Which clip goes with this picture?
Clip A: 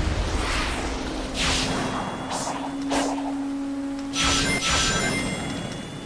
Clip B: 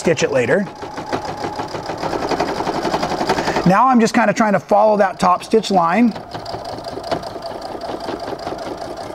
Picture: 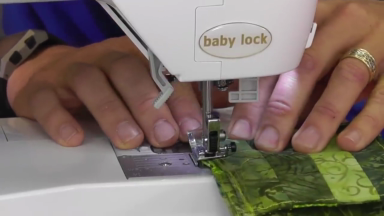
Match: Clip B